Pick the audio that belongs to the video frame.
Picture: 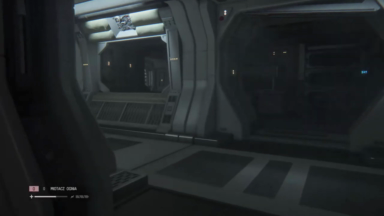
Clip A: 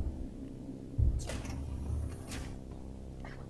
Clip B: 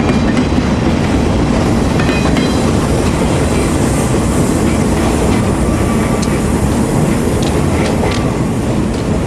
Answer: A